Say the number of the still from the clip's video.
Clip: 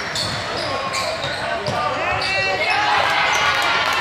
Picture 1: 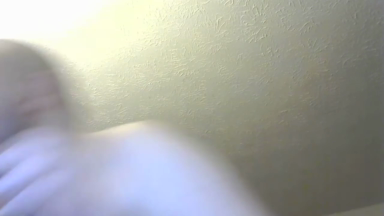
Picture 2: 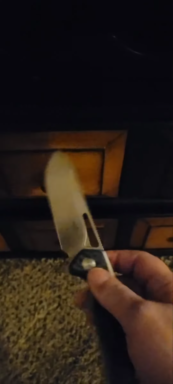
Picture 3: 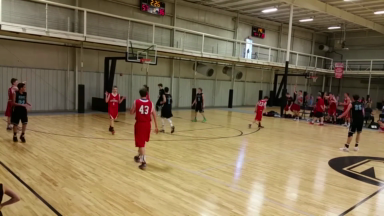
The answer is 3